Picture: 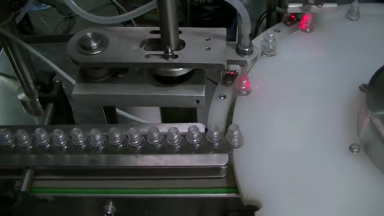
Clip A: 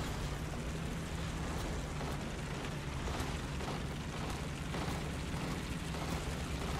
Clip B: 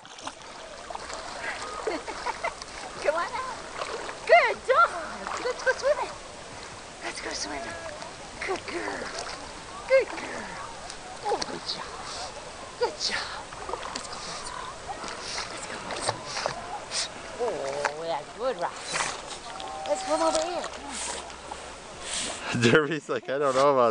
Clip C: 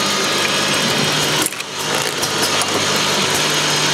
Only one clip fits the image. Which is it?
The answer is C